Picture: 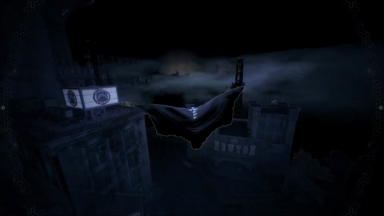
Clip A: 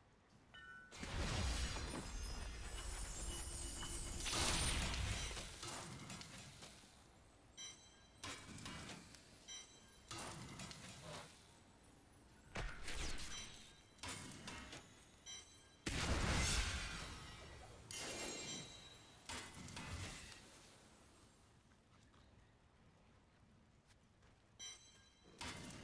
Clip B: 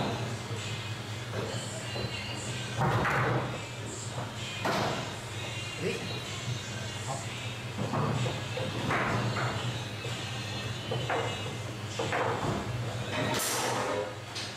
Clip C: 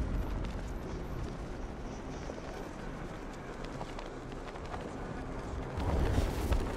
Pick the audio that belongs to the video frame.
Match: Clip C